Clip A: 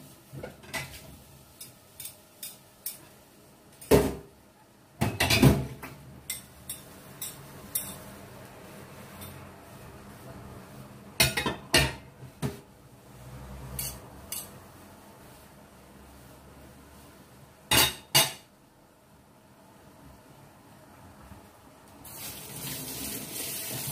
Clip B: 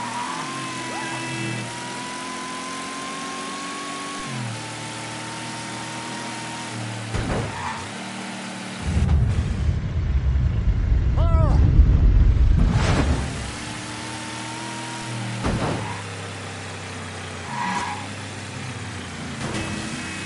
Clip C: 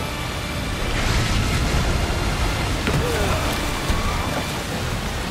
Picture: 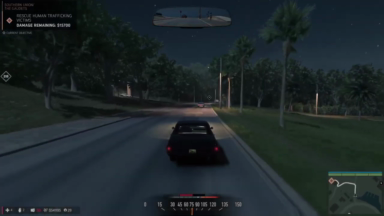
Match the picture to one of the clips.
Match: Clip B